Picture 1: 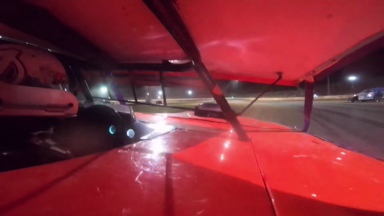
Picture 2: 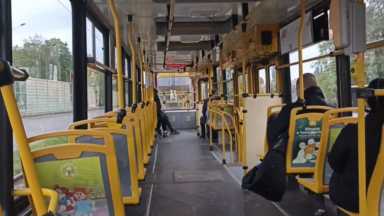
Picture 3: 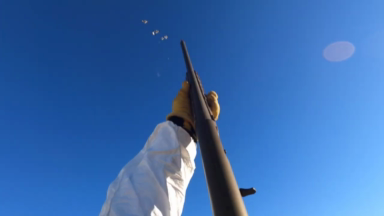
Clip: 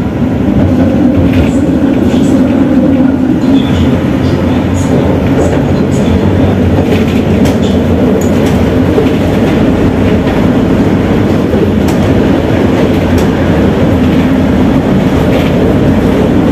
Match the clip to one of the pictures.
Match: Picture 2